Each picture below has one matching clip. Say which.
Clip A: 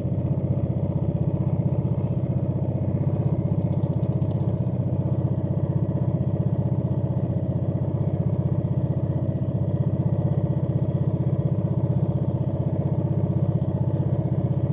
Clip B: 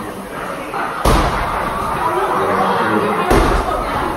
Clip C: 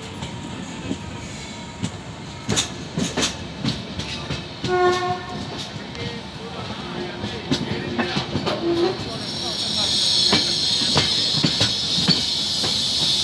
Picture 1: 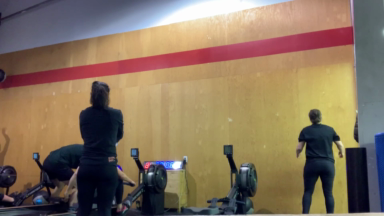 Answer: B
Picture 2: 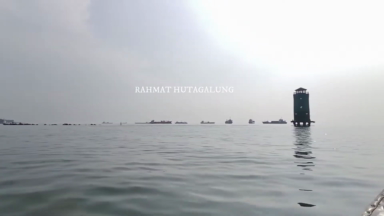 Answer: A